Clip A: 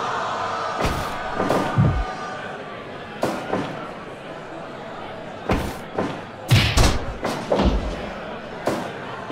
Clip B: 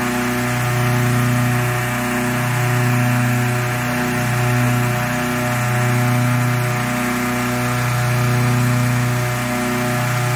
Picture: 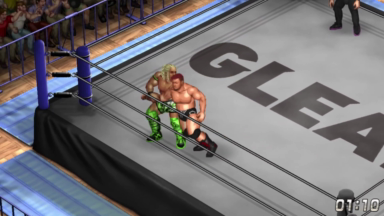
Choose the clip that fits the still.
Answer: A